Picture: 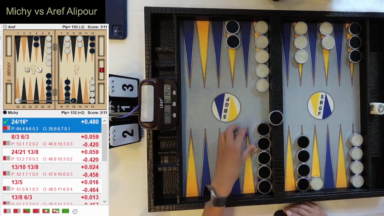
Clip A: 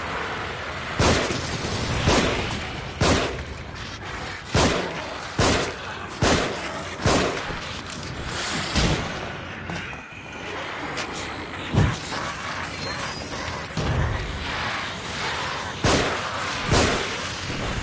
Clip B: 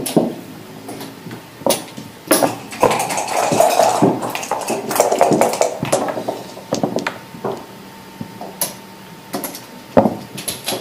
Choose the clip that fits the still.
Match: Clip B